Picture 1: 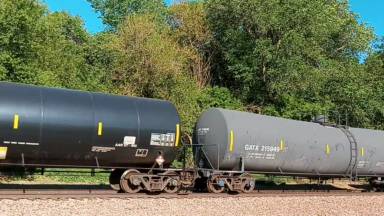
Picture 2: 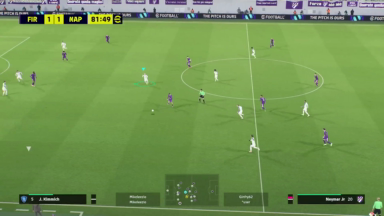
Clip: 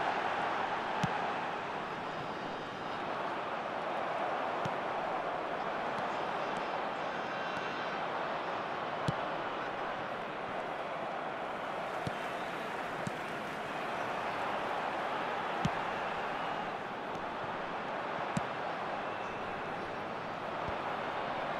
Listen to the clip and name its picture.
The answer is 2